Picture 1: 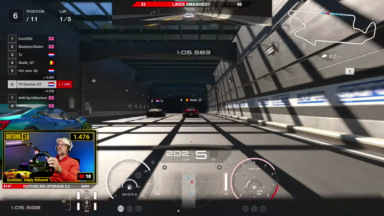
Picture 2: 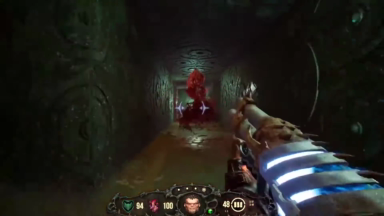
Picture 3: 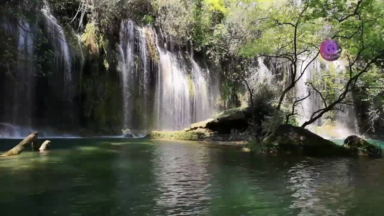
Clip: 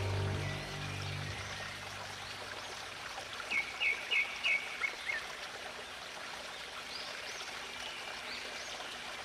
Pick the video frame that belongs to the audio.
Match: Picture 3